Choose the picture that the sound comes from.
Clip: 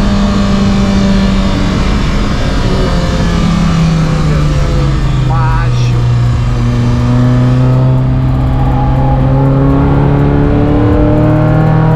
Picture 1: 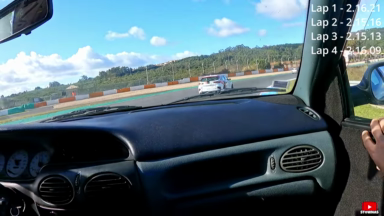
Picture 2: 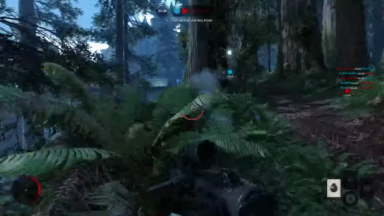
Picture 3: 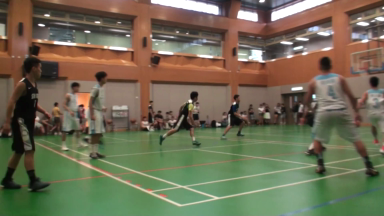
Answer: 1